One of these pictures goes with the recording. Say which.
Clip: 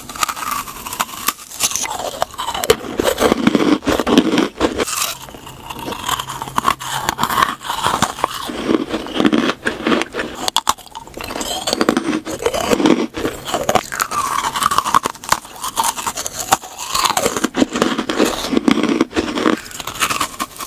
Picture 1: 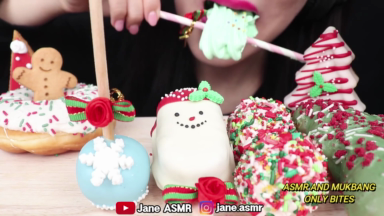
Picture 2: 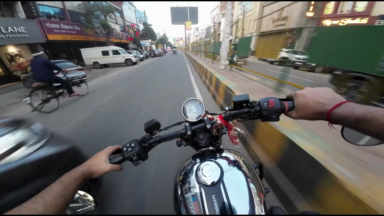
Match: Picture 1